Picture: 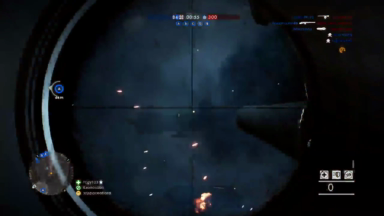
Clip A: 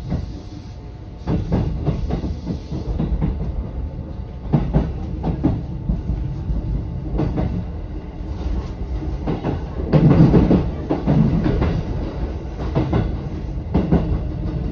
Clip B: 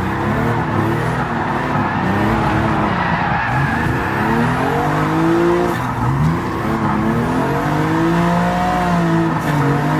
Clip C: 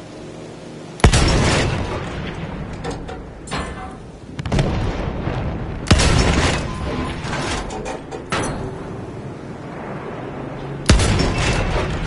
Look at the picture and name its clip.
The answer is C